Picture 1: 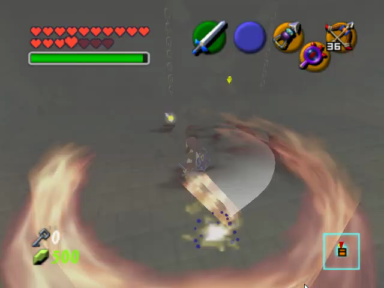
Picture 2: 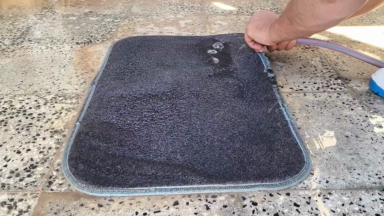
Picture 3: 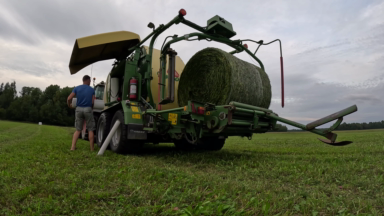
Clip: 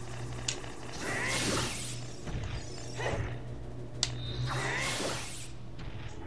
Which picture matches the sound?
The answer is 1